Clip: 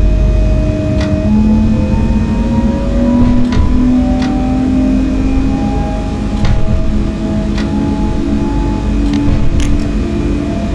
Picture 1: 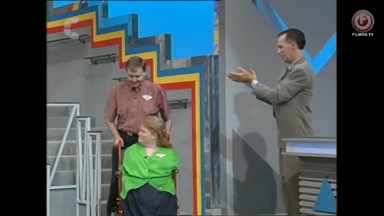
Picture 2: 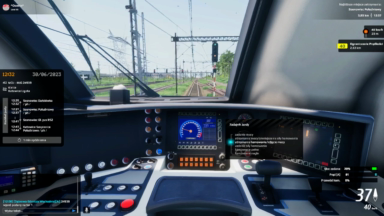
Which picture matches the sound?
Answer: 2